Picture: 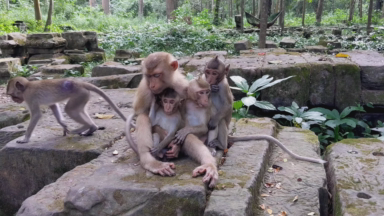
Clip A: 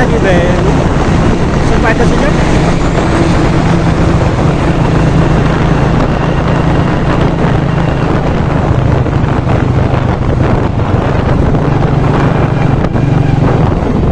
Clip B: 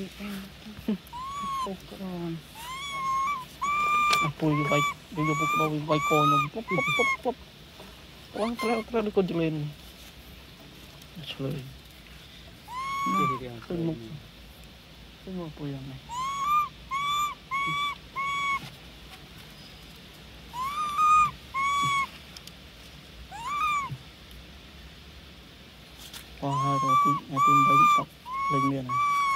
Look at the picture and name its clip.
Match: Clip B